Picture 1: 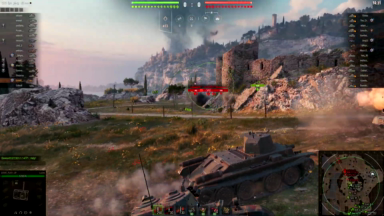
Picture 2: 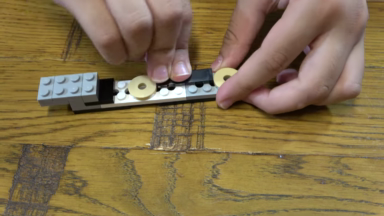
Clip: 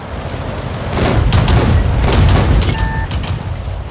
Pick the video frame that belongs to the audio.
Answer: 1